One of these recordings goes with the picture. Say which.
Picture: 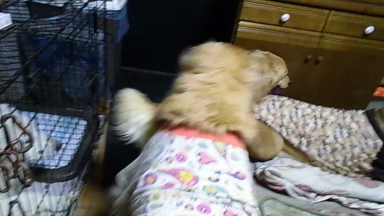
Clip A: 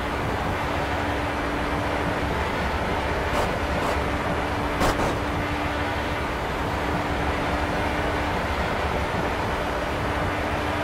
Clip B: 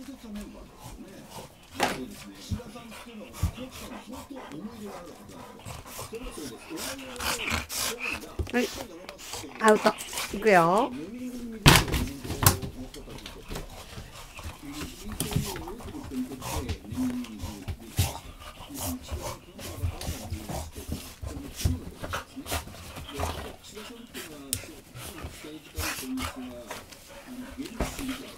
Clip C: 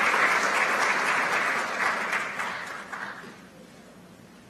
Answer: B